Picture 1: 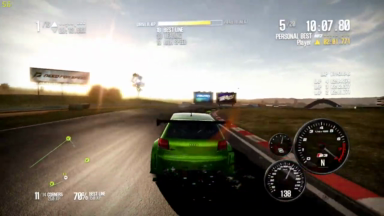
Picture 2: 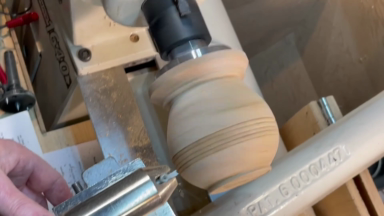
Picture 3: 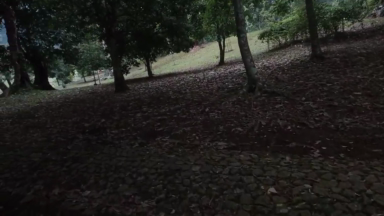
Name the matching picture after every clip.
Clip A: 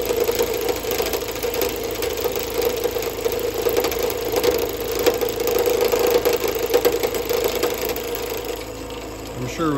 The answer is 2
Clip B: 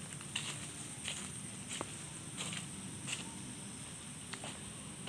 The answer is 3